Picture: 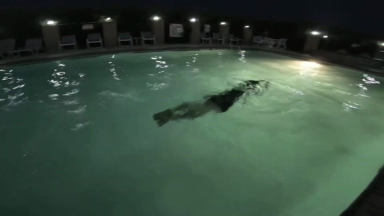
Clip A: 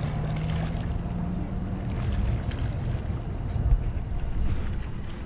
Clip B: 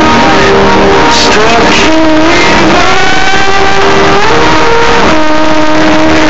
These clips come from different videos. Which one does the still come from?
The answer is A